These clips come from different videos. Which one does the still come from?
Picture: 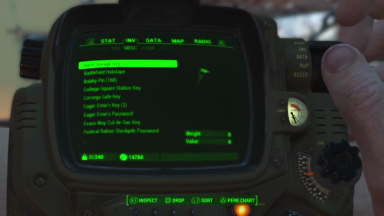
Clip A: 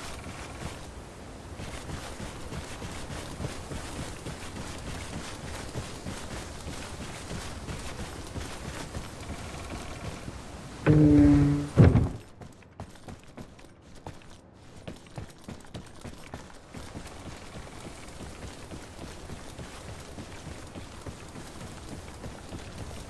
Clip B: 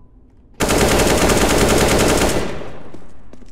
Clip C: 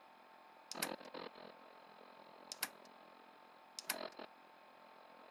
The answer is C